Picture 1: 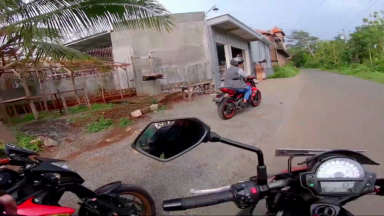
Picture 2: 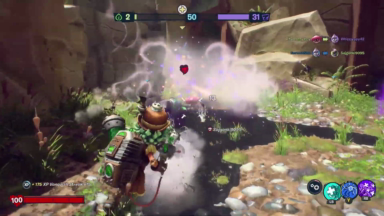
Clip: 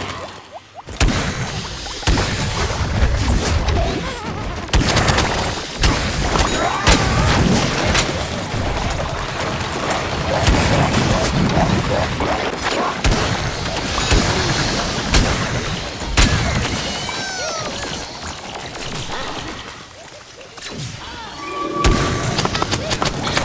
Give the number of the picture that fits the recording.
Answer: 2